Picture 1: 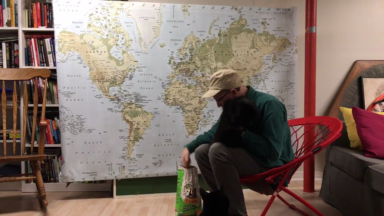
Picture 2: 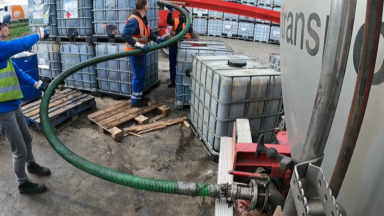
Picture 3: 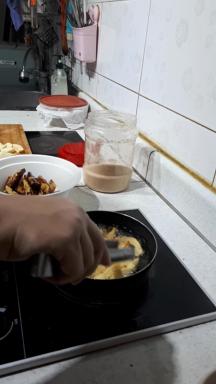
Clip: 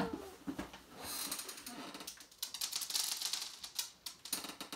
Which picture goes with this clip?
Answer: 1